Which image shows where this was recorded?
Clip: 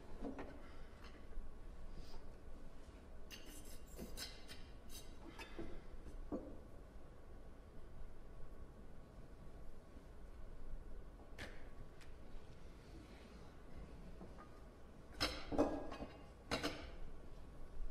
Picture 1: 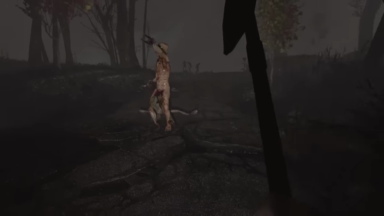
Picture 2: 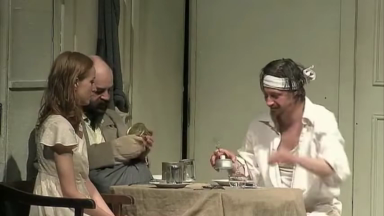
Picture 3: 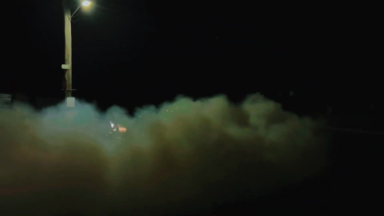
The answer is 2